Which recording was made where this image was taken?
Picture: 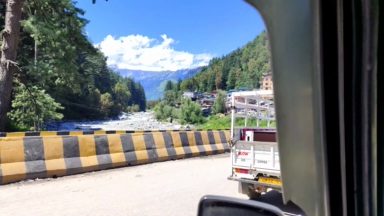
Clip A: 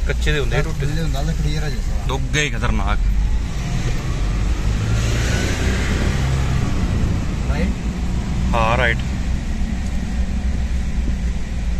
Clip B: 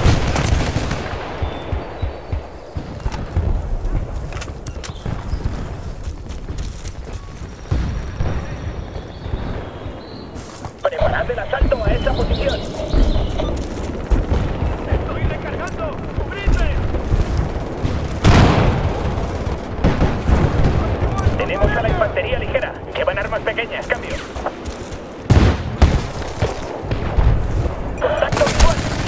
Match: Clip A